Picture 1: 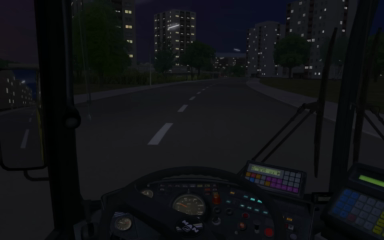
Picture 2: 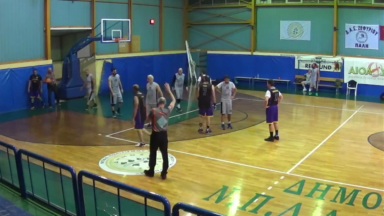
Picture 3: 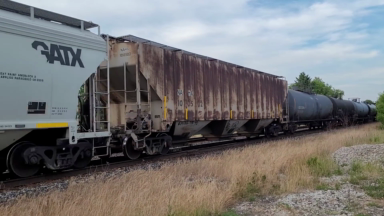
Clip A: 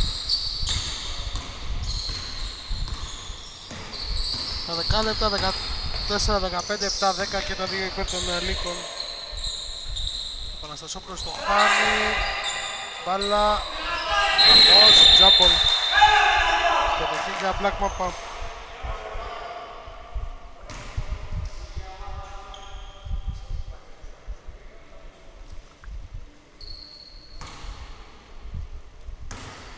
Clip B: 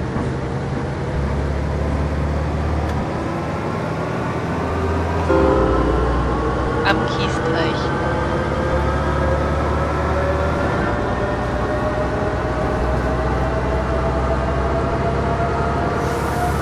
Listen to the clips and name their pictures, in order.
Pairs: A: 2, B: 1